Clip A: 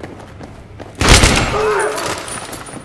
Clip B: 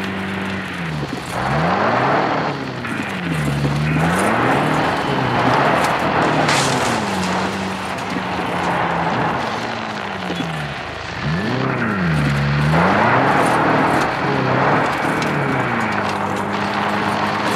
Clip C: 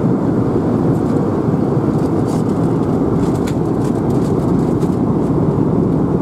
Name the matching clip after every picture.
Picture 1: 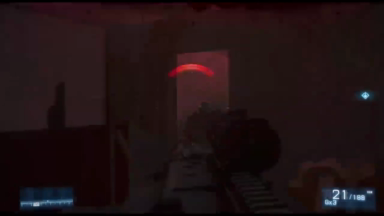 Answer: A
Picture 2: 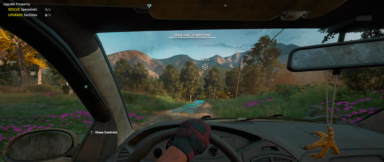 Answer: B